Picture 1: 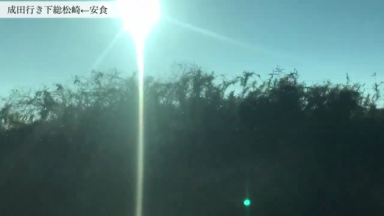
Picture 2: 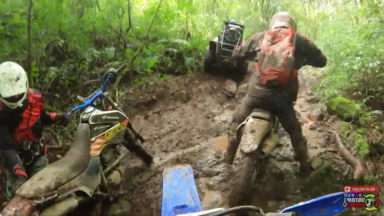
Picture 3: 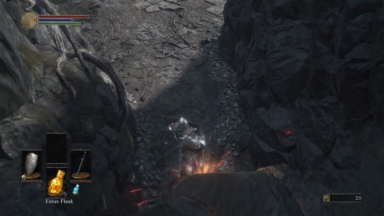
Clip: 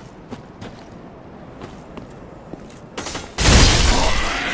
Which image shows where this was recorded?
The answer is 3